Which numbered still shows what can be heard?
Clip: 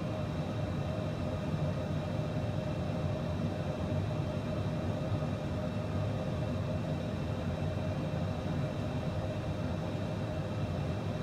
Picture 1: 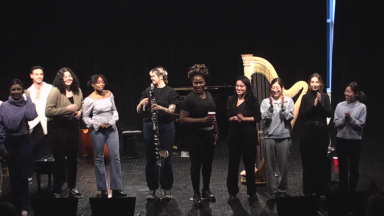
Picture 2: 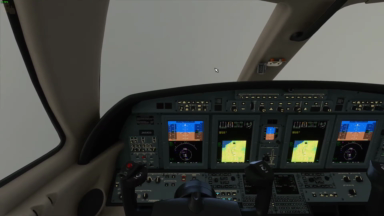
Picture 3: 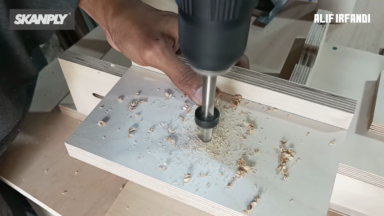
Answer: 2